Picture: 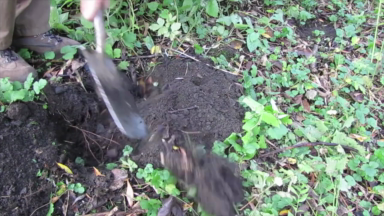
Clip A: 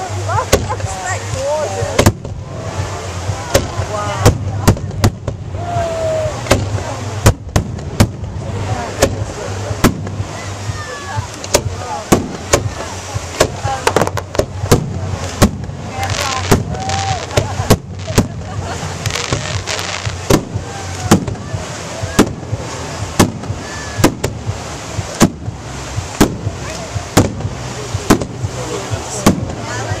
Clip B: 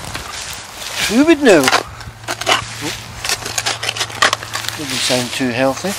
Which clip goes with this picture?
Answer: B